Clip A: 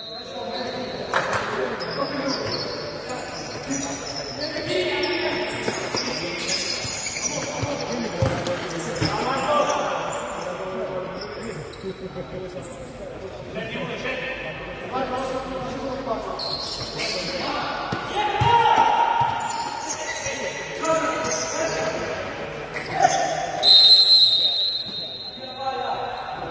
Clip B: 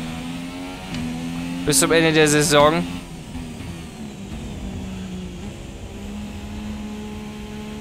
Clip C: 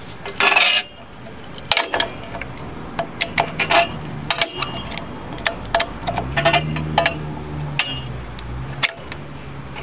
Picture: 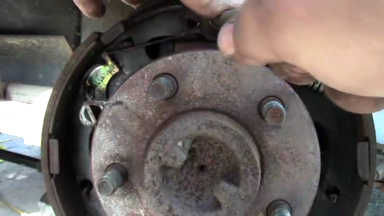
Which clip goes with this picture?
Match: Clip C